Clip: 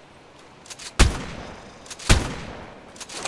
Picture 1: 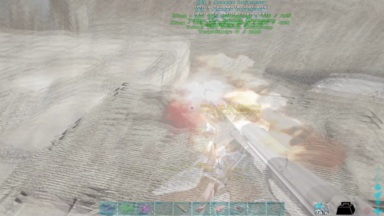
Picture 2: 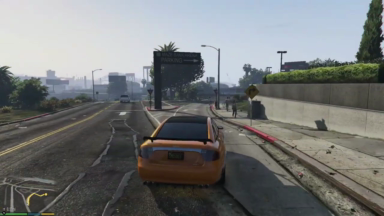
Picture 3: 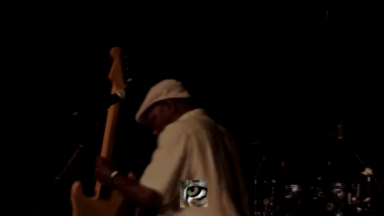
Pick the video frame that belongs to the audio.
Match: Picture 1